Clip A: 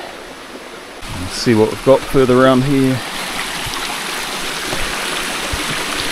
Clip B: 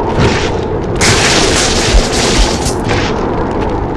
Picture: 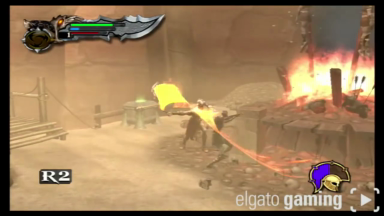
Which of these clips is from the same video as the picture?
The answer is B